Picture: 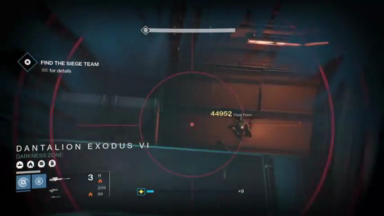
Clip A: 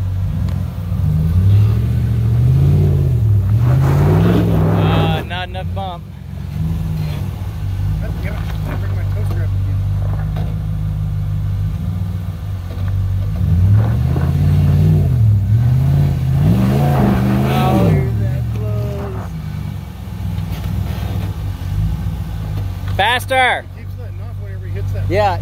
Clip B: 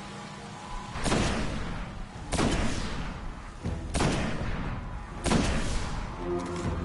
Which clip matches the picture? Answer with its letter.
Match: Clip B